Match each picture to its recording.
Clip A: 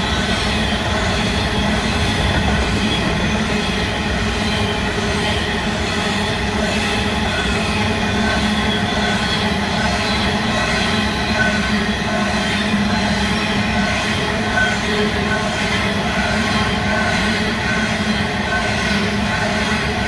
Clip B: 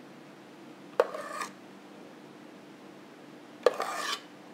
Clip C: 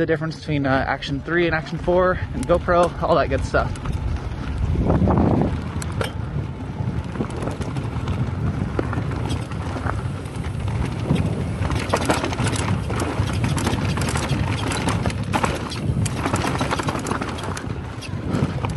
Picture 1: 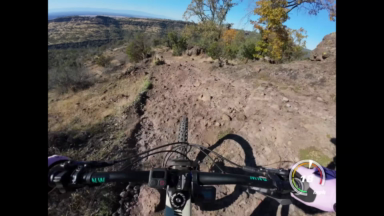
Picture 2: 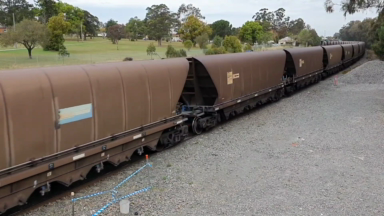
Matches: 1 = C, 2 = A